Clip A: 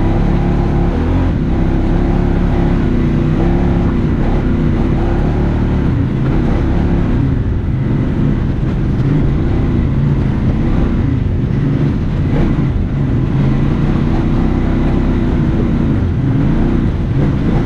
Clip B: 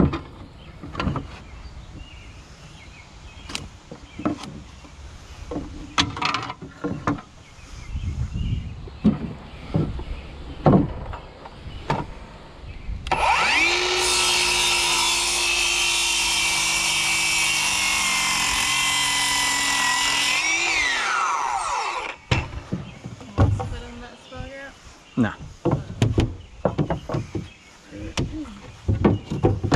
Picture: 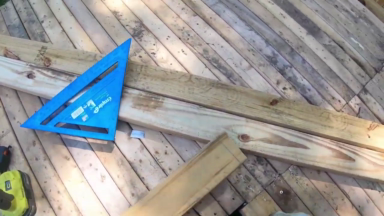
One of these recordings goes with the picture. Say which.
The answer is B